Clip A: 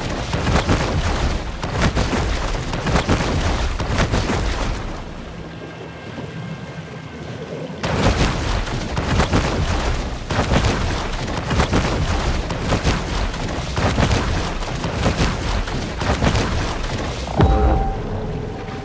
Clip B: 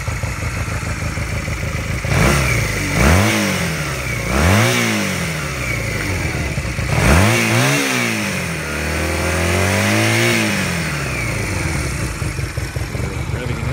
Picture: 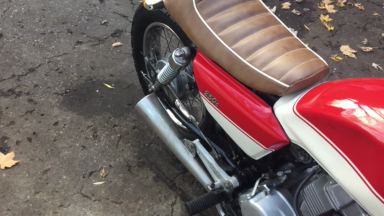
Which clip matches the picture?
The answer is B